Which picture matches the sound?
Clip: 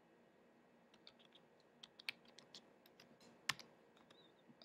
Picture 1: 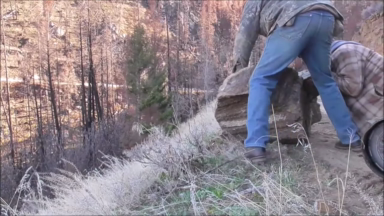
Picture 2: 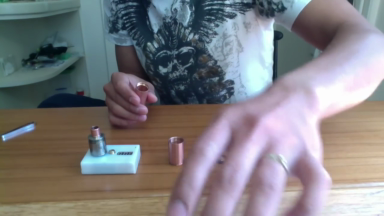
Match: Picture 2